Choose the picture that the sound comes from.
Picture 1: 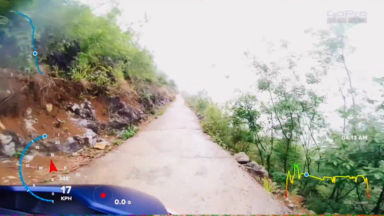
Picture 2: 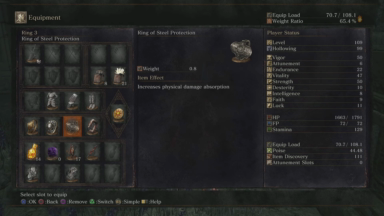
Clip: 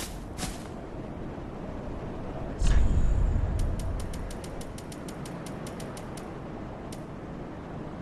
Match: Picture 2